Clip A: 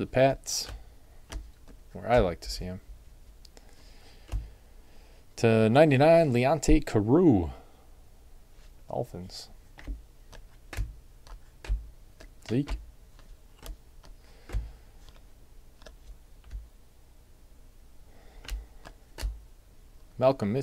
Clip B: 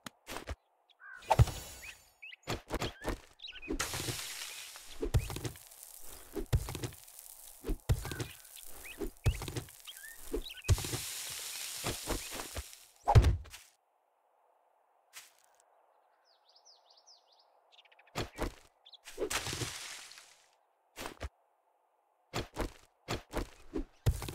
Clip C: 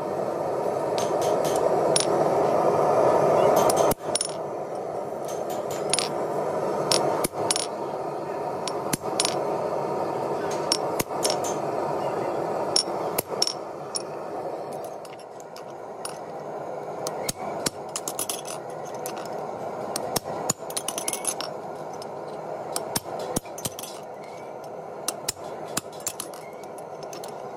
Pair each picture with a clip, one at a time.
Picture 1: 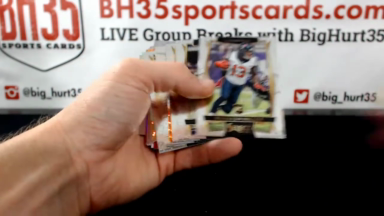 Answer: A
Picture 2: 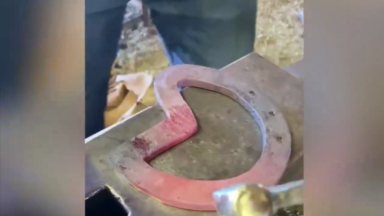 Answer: C